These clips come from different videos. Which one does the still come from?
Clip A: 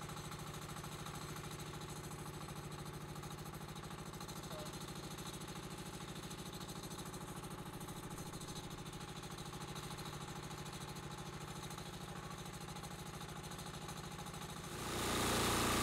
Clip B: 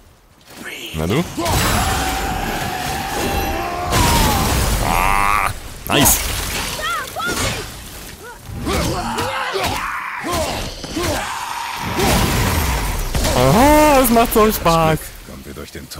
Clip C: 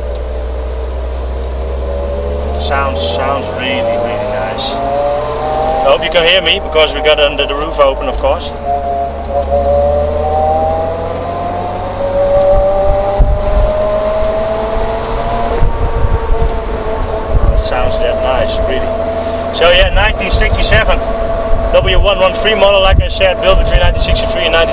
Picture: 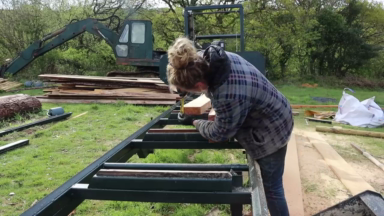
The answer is A